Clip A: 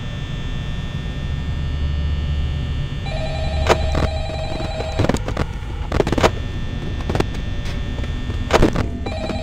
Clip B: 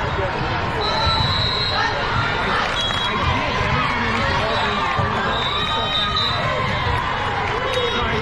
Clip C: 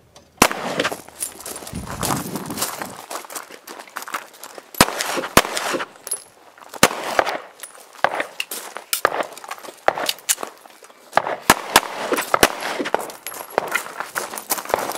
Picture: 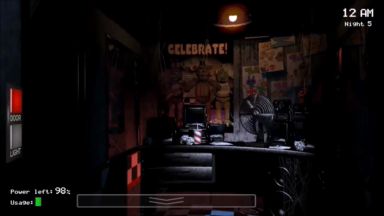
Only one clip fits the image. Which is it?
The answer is A